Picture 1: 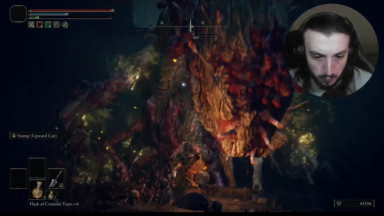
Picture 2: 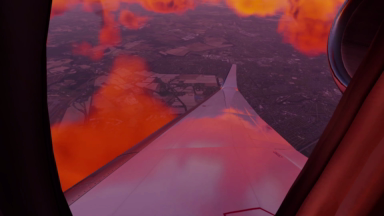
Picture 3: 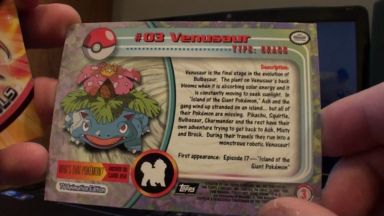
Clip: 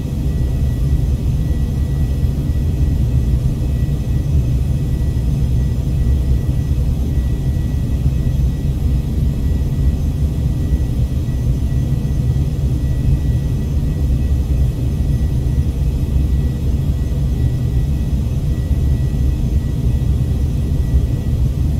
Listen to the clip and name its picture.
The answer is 2